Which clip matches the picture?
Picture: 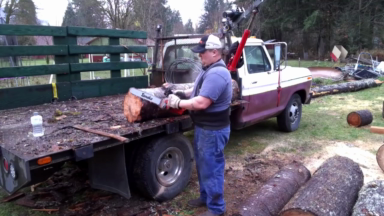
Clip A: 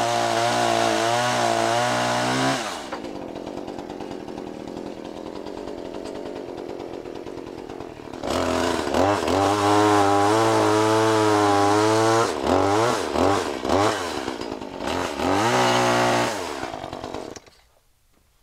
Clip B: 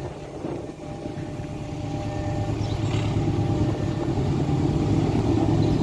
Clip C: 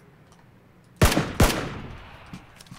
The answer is A